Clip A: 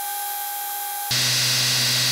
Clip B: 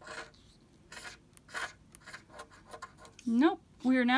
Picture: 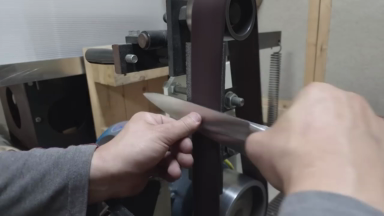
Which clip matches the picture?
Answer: A